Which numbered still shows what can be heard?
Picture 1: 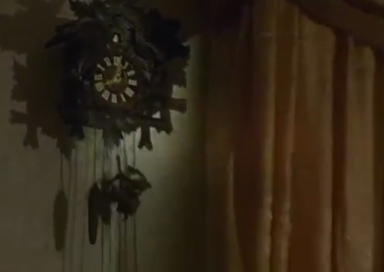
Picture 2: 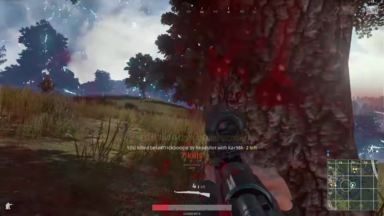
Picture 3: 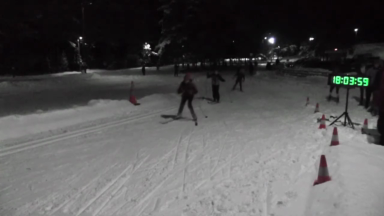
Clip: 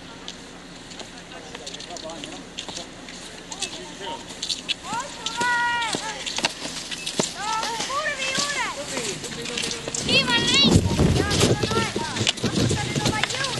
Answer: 3